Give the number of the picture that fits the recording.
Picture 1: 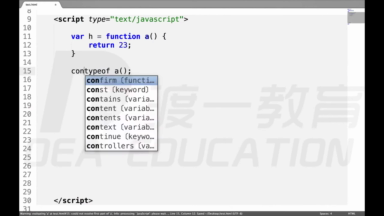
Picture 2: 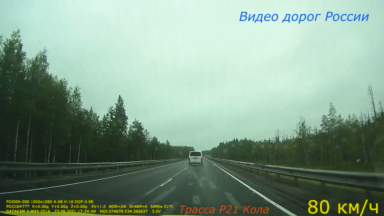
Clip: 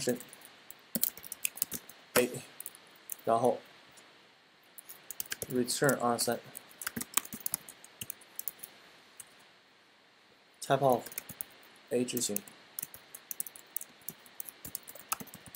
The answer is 1